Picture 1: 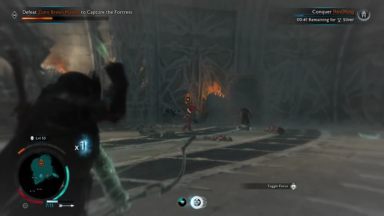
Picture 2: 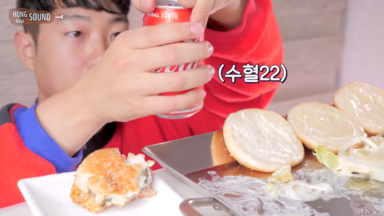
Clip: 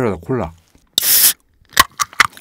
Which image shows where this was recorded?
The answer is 2